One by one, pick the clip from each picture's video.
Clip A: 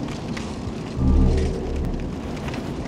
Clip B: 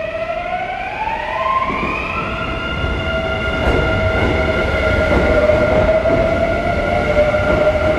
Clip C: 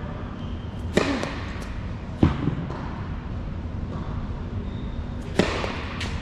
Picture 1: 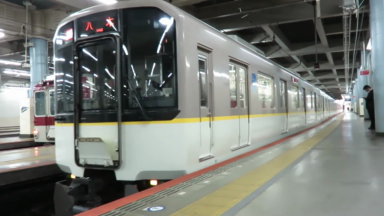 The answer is B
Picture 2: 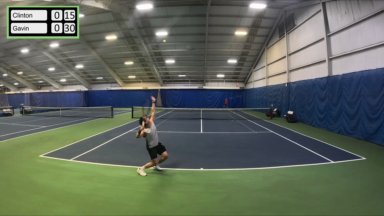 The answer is C